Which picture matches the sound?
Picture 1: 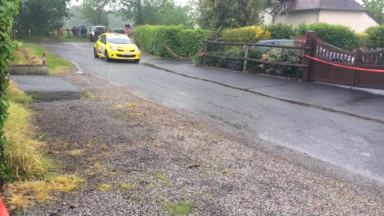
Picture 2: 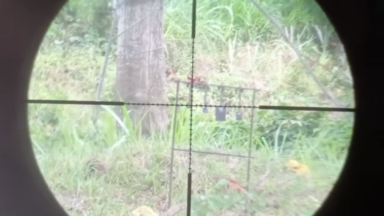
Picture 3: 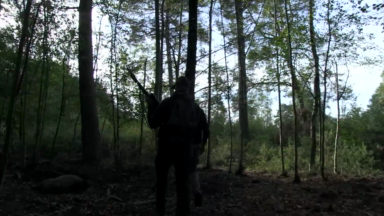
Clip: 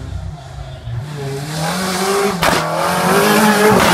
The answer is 1